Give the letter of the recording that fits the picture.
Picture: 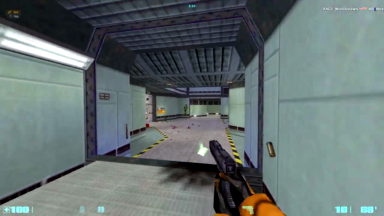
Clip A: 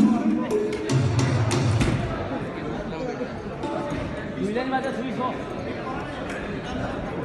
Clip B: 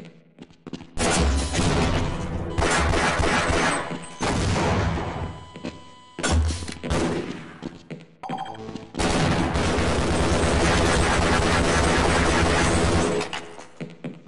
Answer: B